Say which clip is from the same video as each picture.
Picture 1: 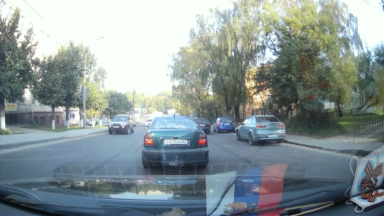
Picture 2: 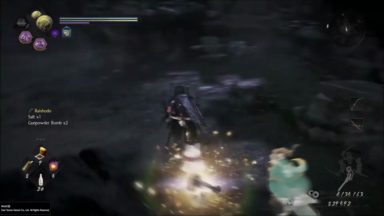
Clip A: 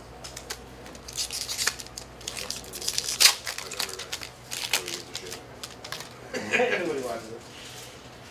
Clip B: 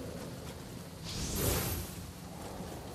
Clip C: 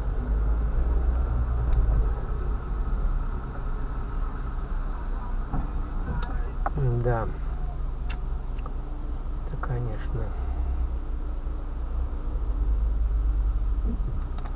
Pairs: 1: C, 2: B